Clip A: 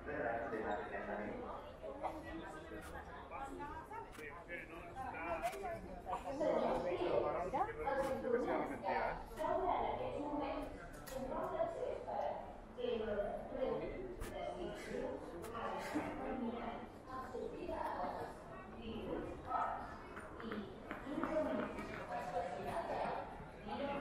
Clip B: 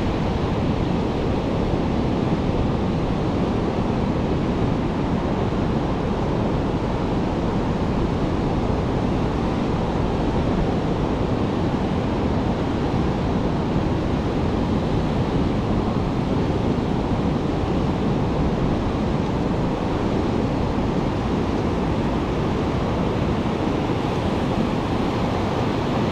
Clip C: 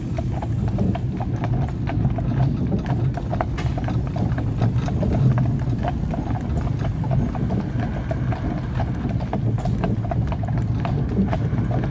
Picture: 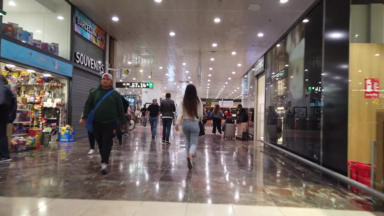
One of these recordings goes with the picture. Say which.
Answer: A